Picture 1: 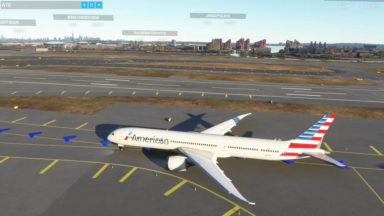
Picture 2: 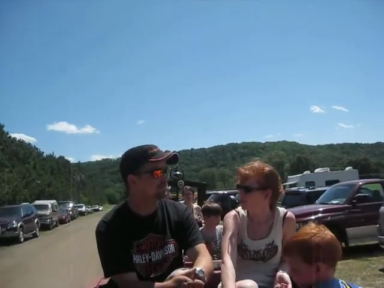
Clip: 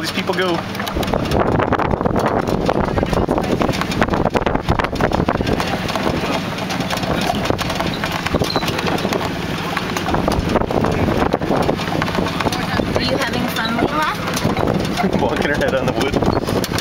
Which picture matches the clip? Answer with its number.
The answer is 2